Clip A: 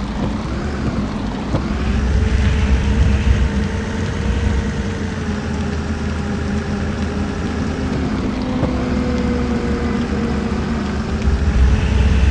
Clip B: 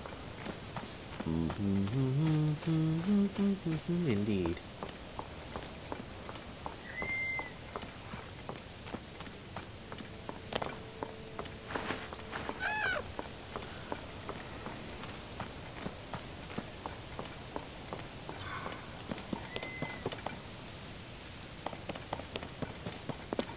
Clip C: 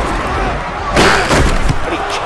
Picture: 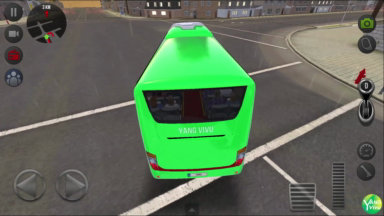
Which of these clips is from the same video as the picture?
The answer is A